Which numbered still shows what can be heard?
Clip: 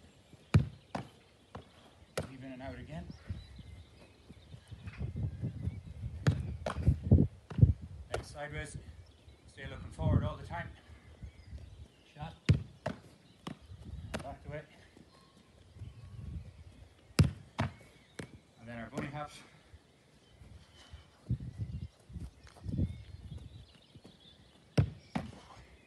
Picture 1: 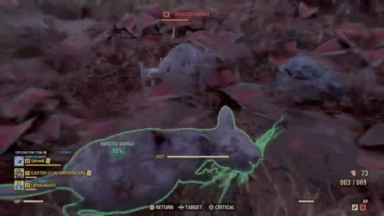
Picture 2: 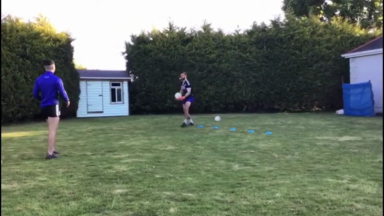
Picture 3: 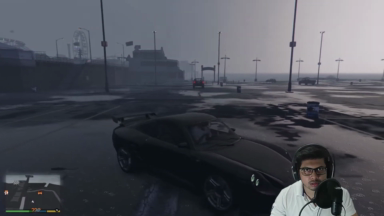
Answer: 2